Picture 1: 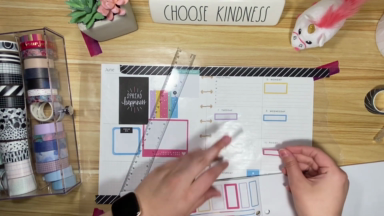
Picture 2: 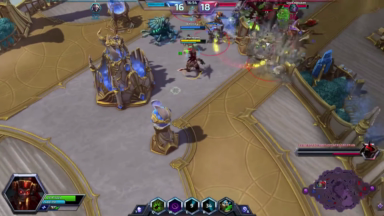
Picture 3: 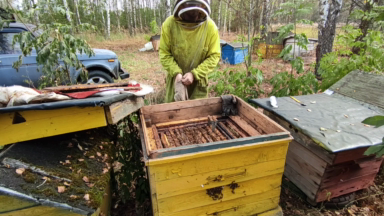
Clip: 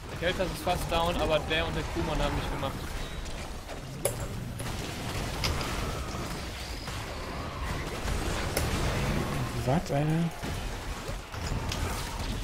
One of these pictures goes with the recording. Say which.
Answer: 2